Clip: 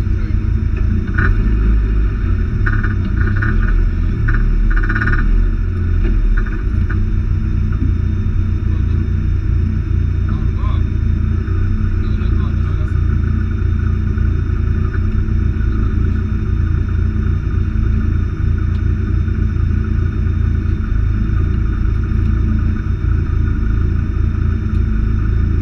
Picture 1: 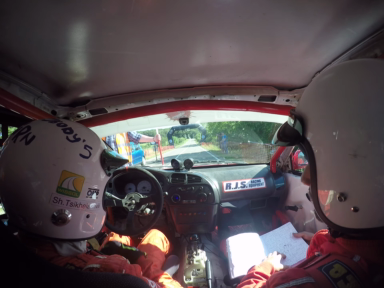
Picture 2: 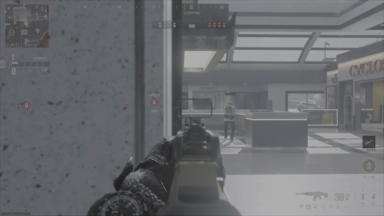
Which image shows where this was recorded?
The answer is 1